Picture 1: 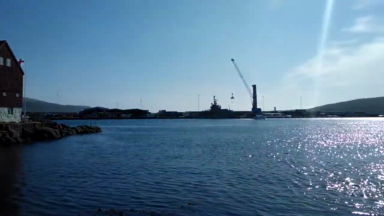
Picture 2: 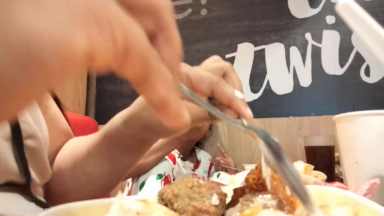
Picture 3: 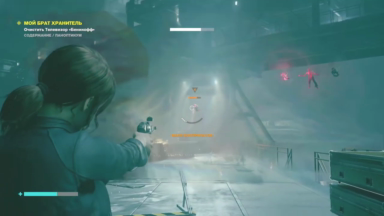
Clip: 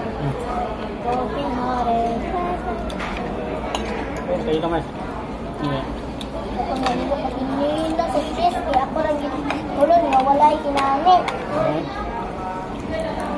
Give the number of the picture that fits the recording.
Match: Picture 2